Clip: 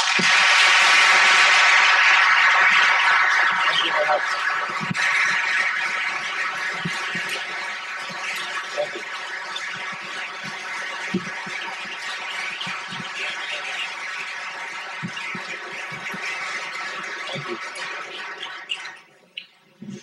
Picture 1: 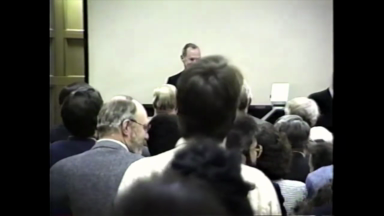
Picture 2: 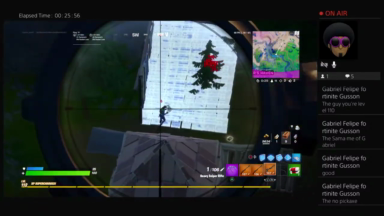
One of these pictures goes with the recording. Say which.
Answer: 1